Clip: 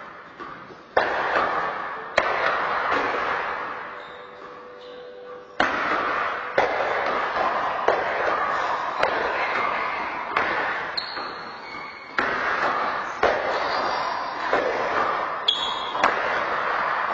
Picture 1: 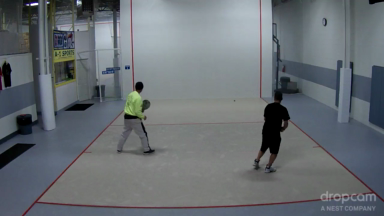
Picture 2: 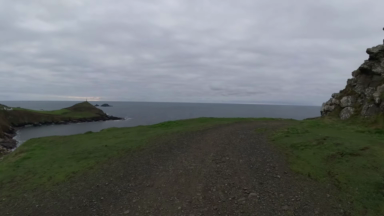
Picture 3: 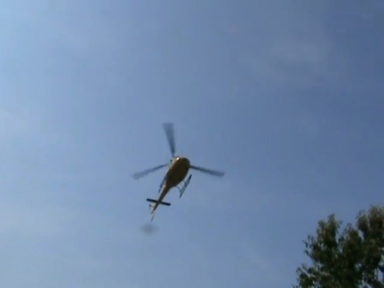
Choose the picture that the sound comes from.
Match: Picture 1